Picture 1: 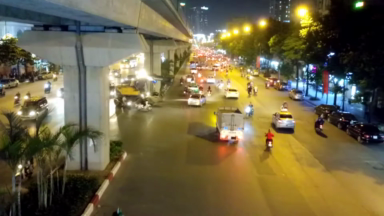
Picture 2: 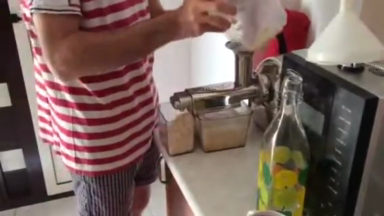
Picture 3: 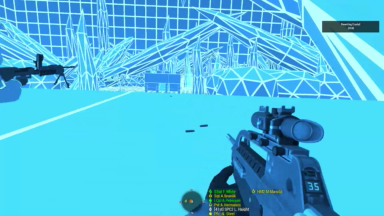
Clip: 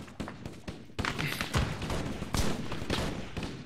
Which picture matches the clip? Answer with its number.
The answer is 3